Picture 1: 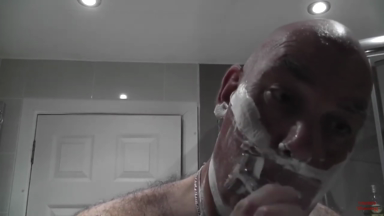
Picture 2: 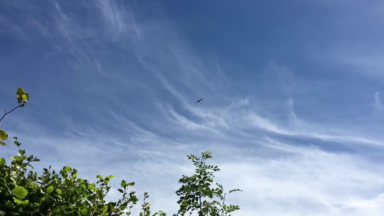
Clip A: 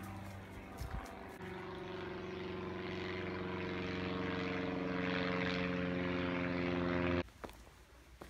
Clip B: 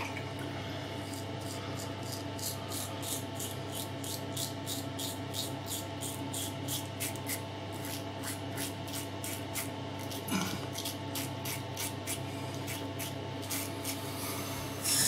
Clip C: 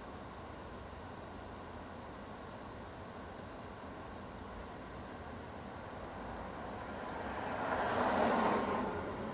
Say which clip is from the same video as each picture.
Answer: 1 B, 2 A